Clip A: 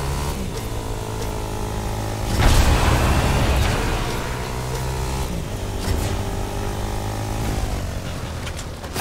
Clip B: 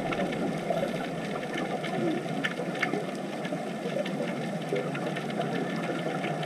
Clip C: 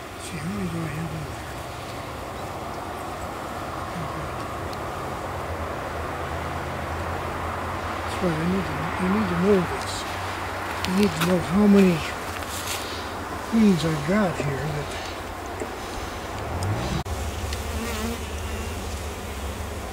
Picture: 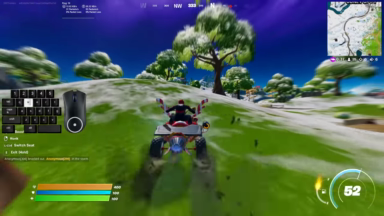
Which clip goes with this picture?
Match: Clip A